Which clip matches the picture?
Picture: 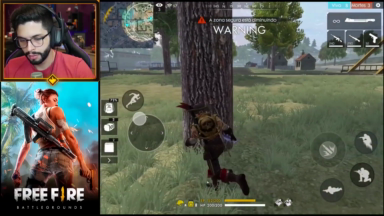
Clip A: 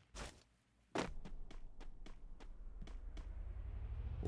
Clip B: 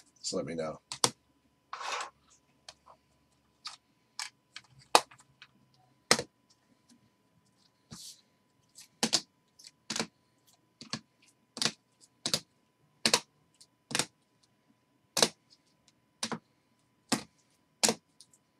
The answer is A